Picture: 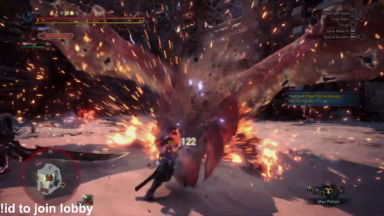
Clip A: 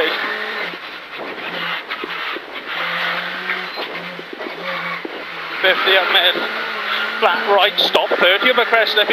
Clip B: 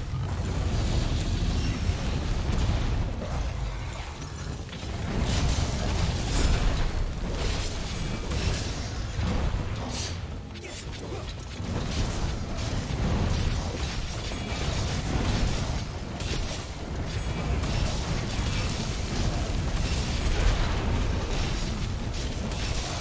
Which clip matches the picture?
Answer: B